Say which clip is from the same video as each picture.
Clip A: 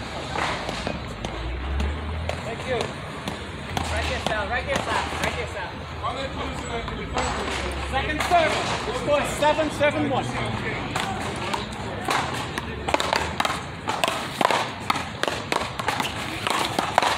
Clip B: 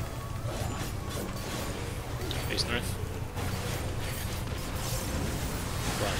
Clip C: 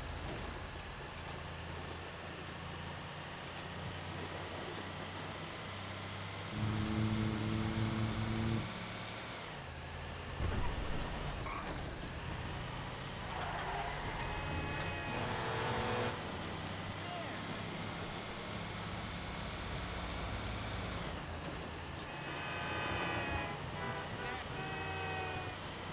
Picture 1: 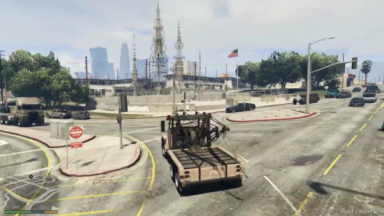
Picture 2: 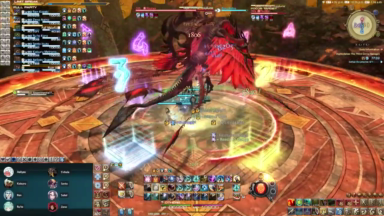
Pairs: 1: C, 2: B